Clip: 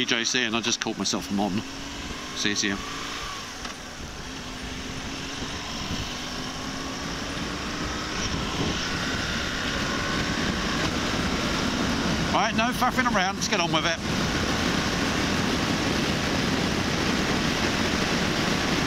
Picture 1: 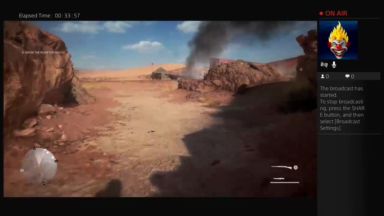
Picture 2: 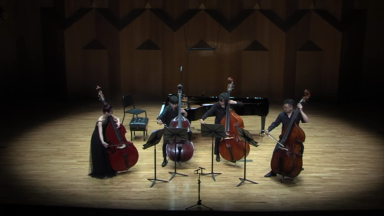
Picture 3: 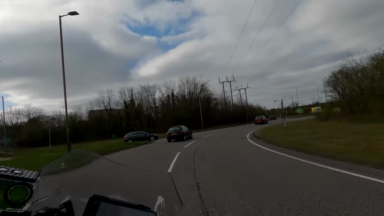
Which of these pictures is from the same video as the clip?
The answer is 3